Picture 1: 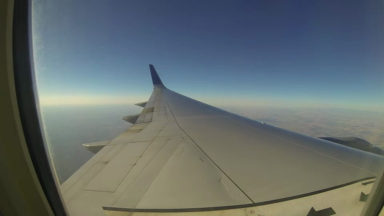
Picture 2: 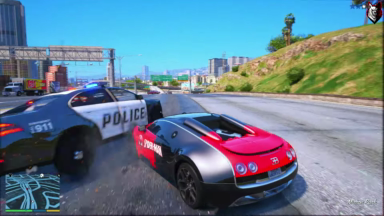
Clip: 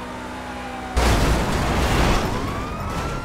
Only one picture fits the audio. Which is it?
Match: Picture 2